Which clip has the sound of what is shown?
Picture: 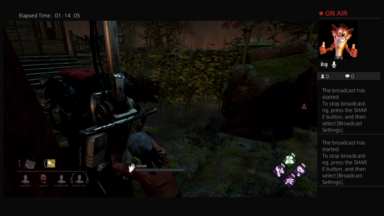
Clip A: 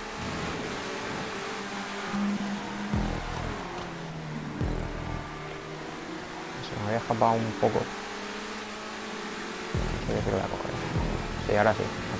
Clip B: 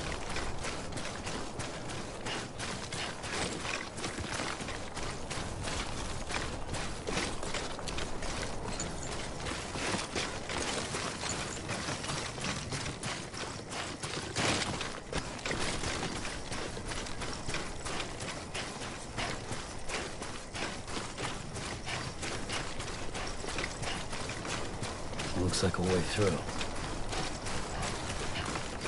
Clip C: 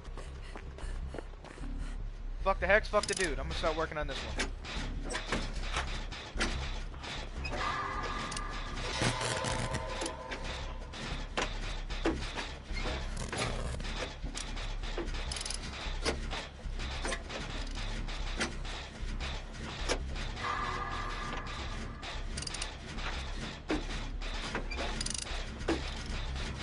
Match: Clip C